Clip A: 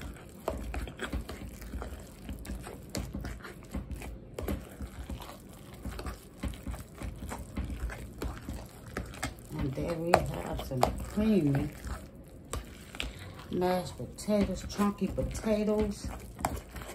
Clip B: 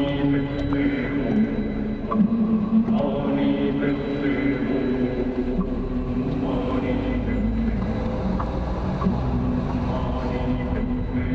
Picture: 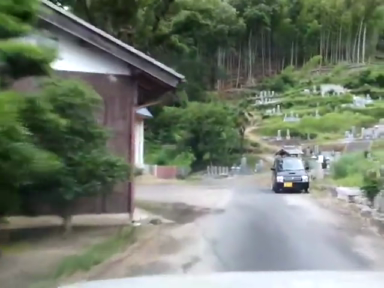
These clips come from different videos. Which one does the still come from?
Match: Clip B